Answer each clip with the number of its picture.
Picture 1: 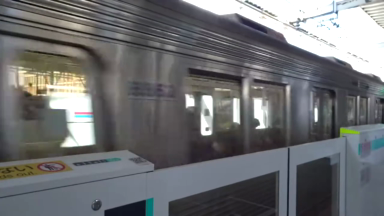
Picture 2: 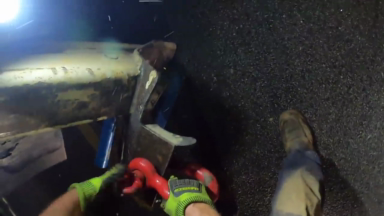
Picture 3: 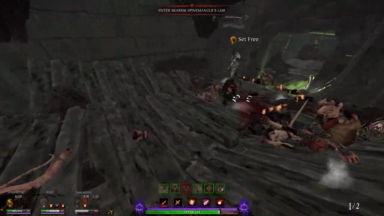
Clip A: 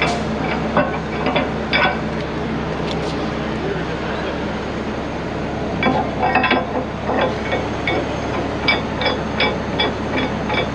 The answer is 2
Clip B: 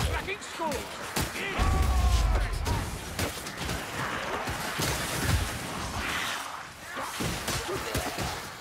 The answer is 3